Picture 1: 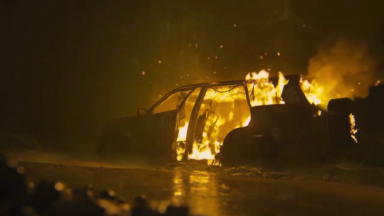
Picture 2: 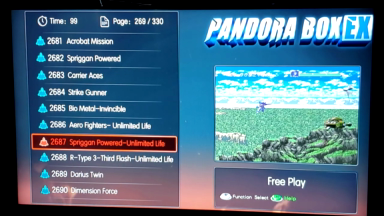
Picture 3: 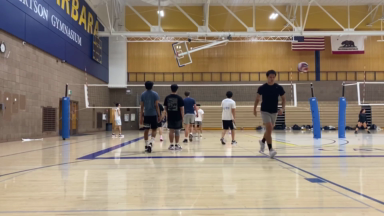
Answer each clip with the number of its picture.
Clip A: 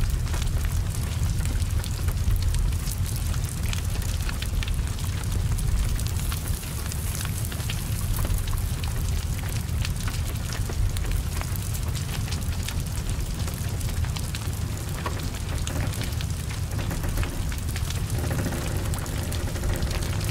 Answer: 1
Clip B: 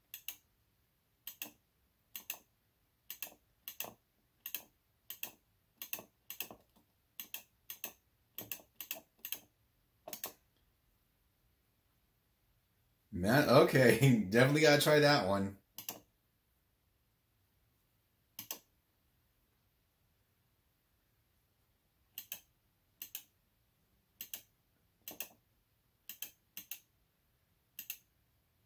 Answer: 2